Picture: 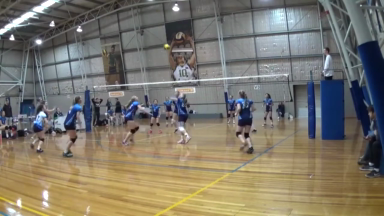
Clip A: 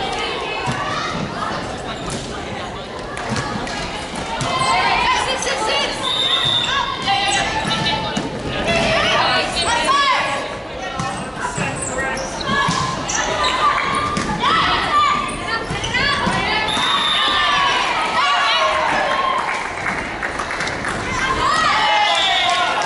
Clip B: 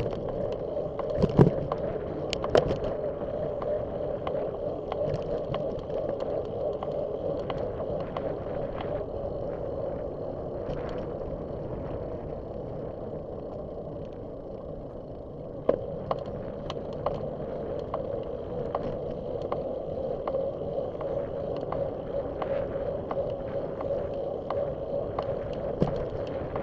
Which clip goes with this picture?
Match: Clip A